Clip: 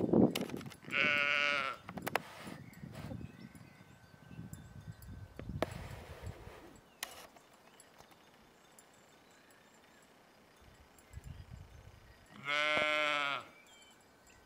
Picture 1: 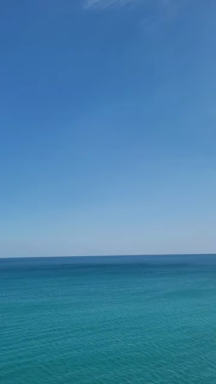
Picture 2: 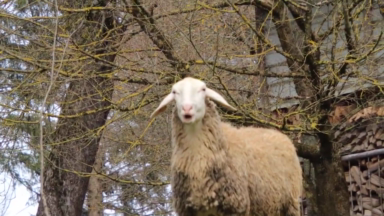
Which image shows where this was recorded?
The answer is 2